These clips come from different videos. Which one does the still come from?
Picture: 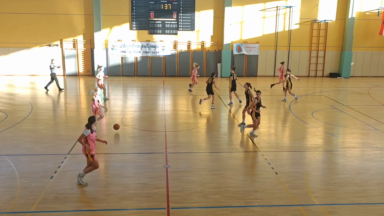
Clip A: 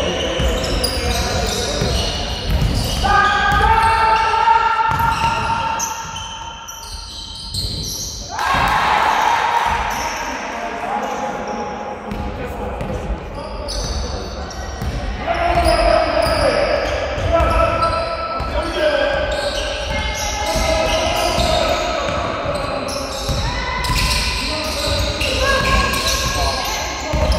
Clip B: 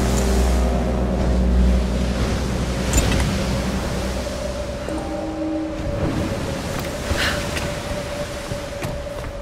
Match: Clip A